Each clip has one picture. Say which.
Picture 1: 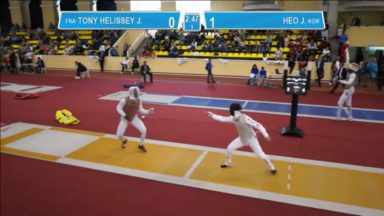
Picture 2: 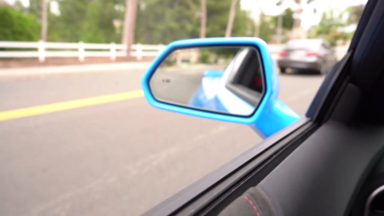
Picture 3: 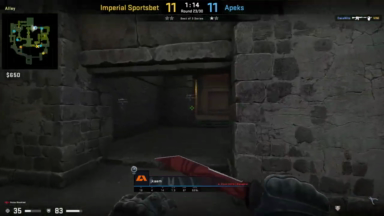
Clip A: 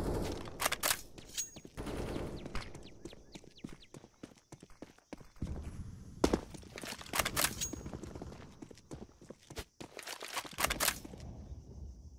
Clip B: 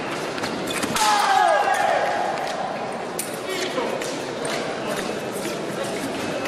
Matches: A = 3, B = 1